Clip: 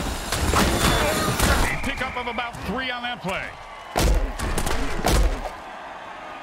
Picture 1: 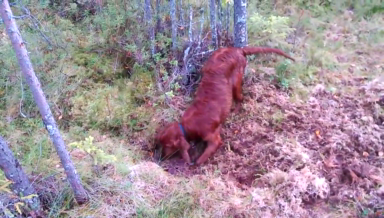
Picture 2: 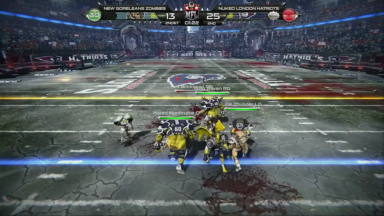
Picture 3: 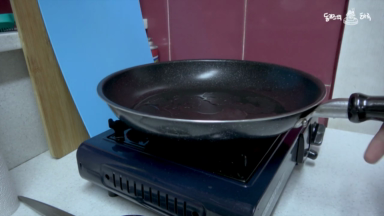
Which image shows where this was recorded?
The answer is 2